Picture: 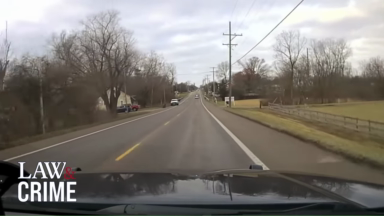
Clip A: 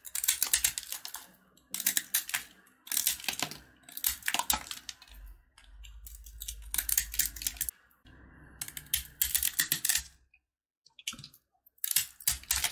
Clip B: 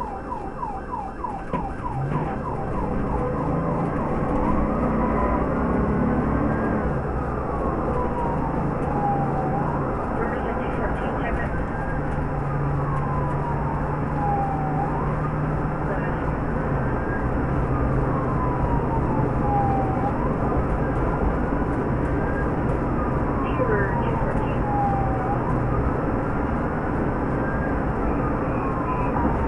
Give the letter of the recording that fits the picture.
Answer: B